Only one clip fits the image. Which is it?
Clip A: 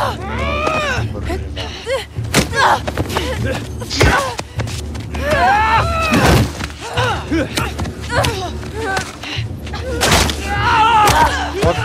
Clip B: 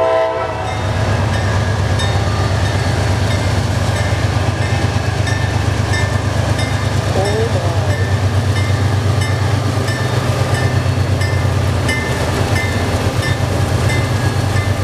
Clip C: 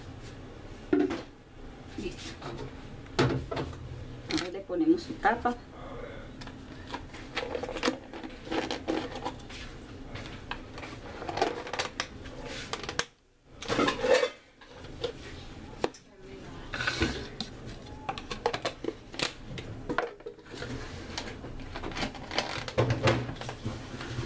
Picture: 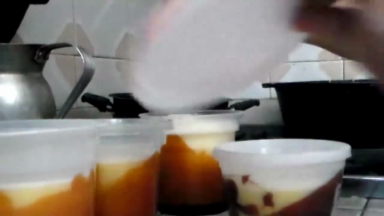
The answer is C